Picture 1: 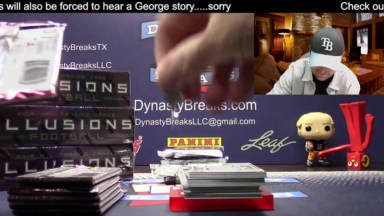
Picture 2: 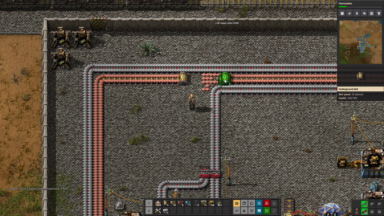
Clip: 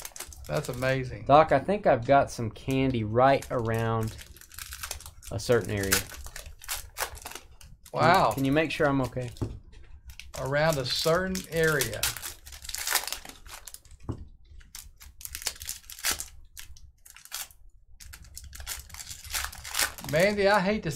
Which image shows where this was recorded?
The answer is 1